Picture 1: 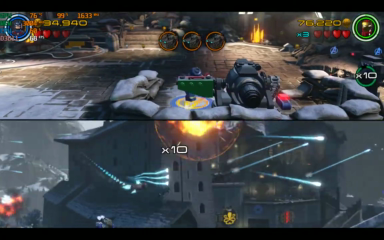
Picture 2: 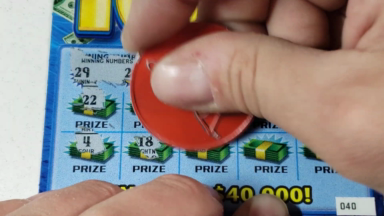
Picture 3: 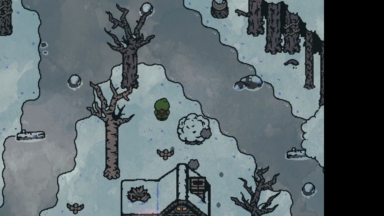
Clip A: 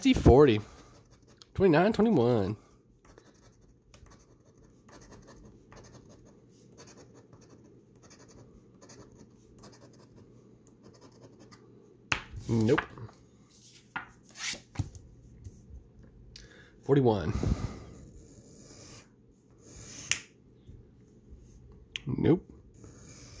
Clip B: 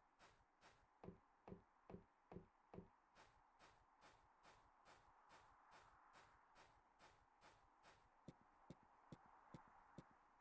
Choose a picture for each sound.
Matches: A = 2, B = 3